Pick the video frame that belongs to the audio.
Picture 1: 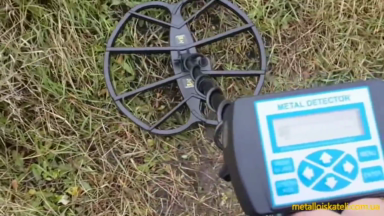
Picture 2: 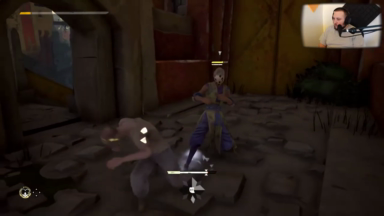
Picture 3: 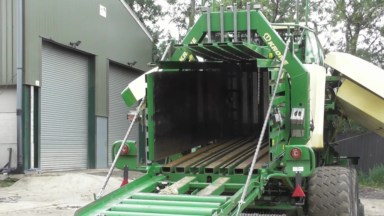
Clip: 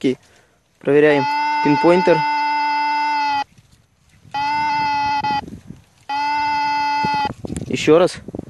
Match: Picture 1